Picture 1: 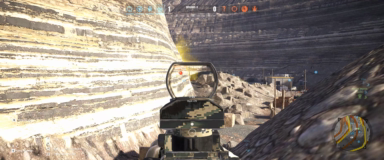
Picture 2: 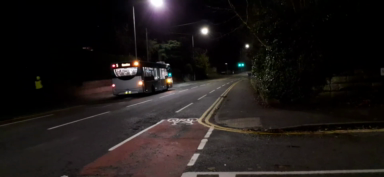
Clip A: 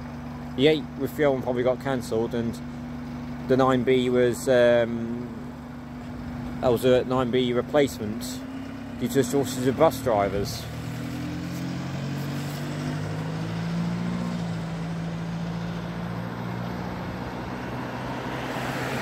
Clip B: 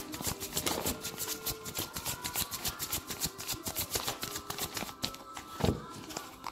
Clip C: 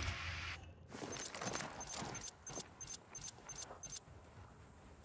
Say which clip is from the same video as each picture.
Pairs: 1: C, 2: A